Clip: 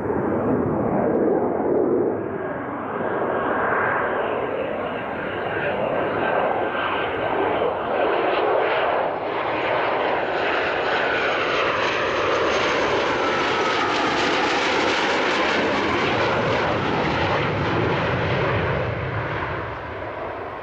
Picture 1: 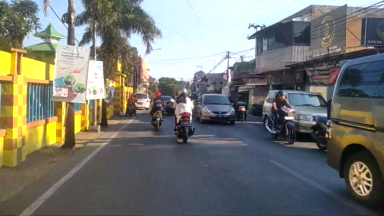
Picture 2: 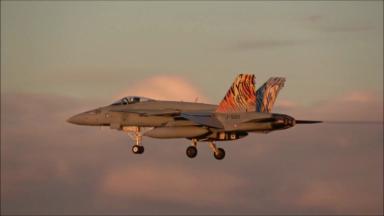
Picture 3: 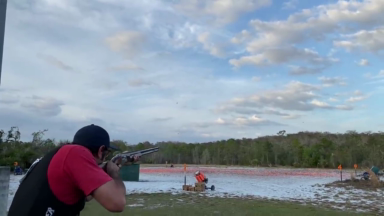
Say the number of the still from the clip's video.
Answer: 2